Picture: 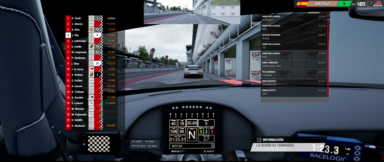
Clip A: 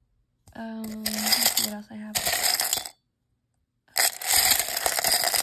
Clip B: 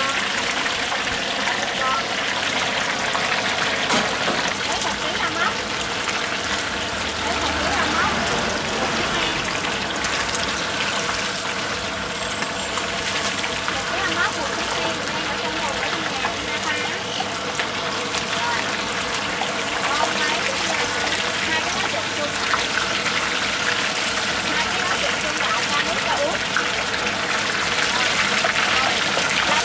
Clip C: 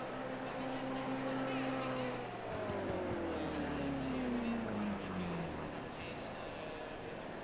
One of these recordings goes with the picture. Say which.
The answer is C